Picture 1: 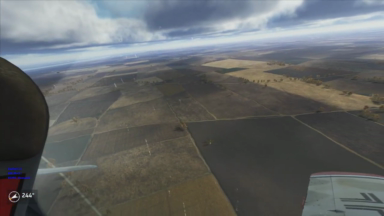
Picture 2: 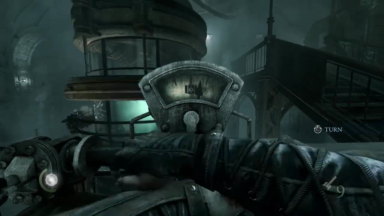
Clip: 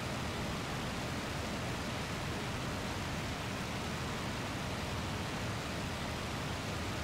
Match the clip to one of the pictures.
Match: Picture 1